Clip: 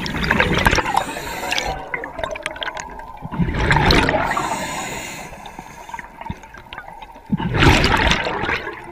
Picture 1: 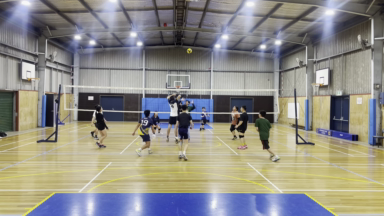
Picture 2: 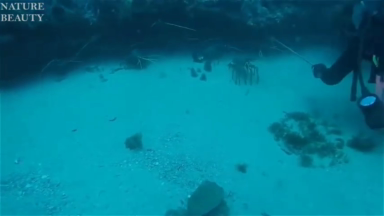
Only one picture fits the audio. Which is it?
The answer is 2